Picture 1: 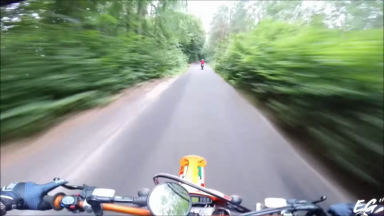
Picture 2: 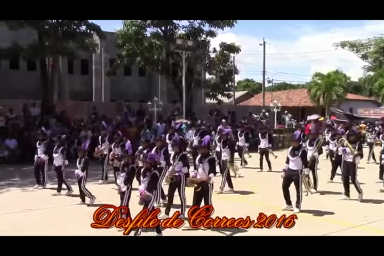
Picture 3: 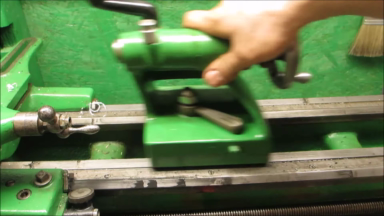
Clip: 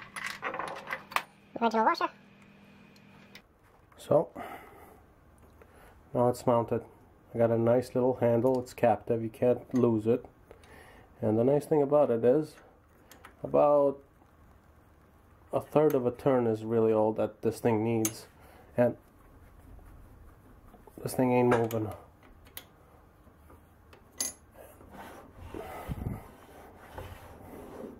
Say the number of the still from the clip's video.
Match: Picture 3